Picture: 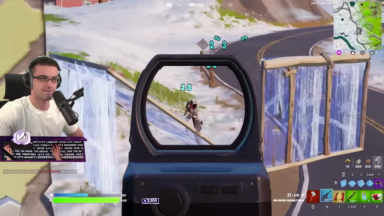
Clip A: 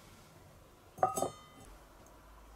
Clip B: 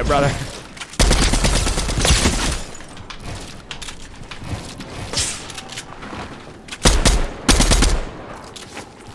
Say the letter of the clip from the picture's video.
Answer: B